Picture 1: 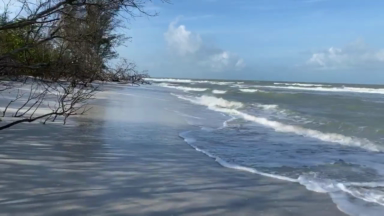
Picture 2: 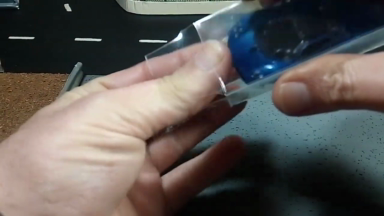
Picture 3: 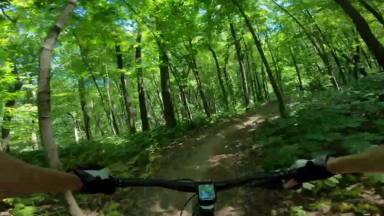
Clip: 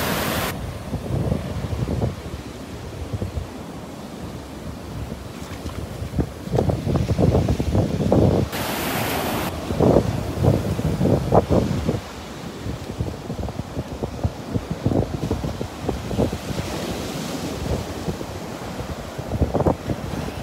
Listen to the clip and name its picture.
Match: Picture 1